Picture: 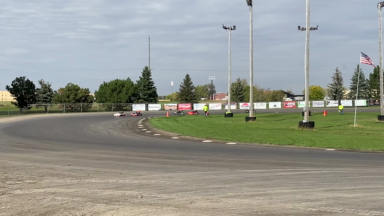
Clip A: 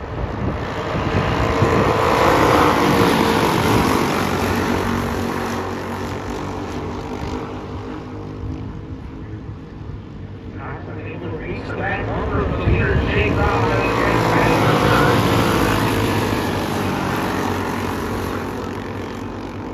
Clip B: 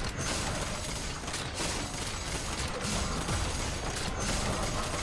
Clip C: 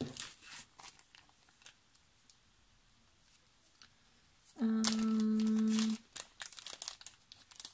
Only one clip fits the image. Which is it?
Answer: A